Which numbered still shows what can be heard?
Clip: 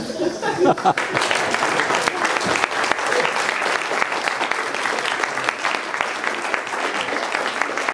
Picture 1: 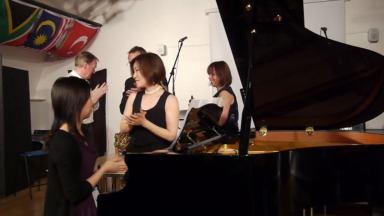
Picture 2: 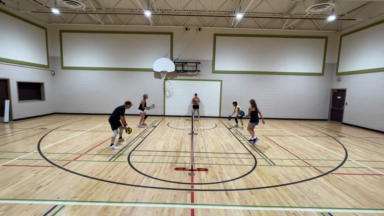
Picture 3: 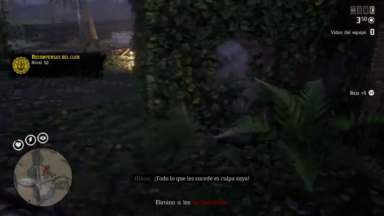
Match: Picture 1